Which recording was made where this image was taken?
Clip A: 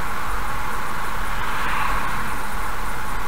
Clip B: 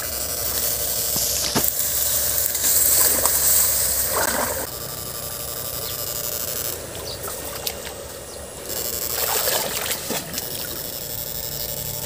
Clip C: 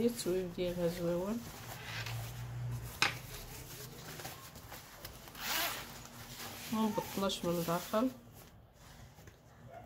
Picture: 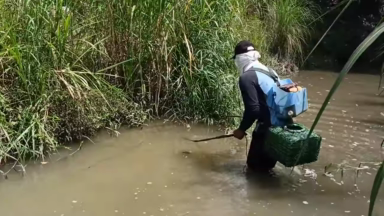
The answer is B